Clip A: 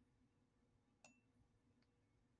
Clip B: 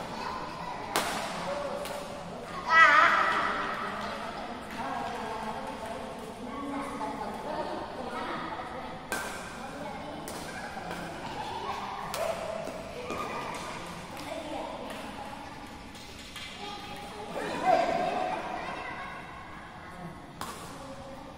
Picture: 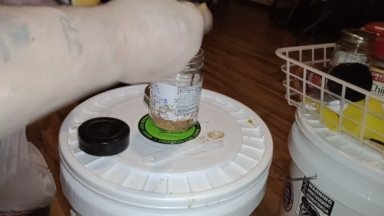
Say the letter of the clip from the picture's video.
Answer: A